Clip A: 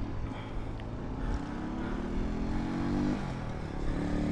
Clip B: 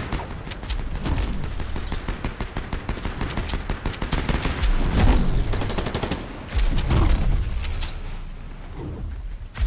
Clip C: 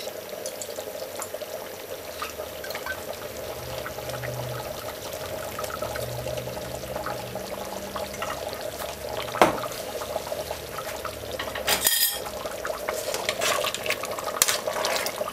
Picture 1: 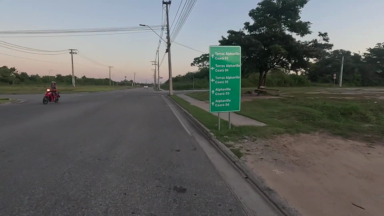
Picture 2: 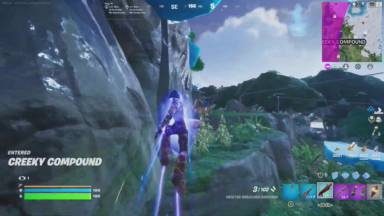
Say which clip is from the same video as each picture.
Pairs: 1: A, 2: B